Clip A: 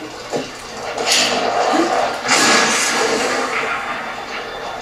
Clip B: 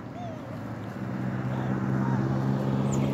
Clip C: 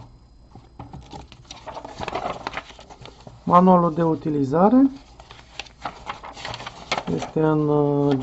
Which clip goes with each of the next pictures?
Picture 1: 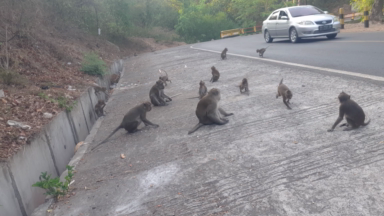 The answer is B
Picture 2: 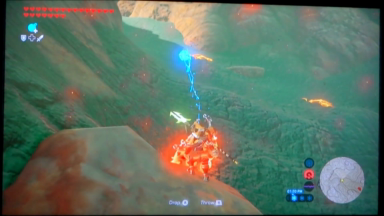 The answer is A